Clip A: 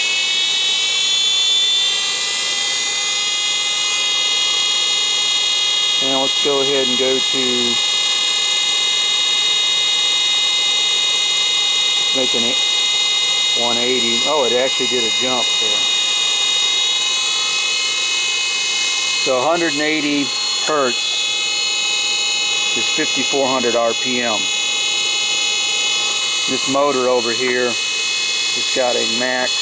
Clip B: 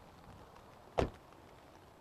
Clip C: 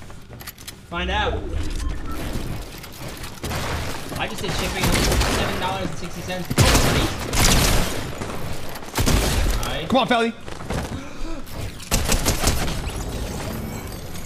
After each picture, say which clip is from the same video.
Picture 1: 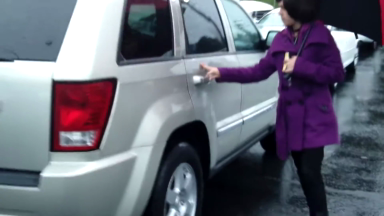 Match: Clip B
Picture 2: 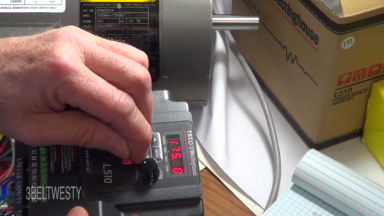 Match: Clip A